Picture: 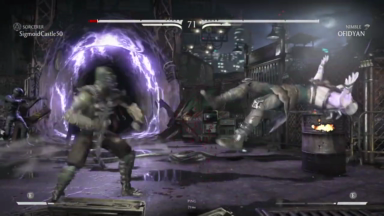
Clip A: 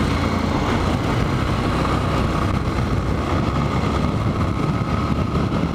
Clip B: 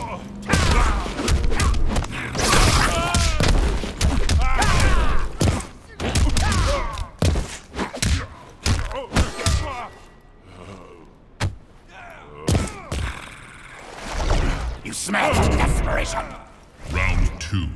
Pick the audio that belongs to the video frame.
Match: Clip B